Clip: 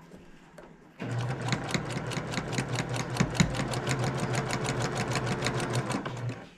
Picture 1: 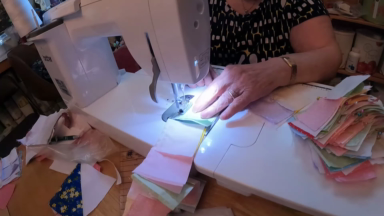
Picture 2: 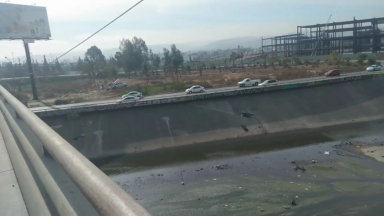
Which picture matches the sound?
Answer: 1